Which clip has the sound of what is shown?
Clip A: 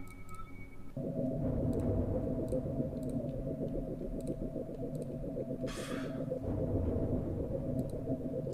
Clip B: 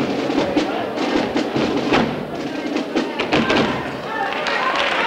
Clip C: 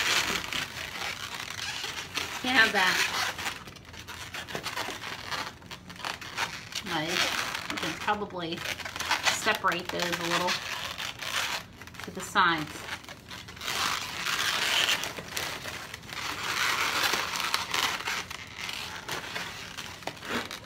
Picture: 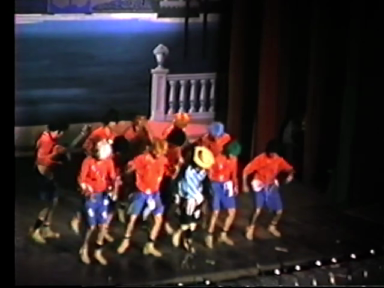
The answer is B